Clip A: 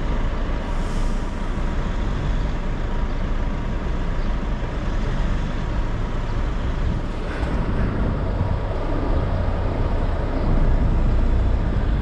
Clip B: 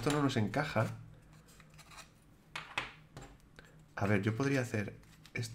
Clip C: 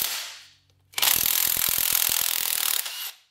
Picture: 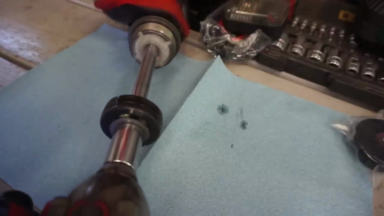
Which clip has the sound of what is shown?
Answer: C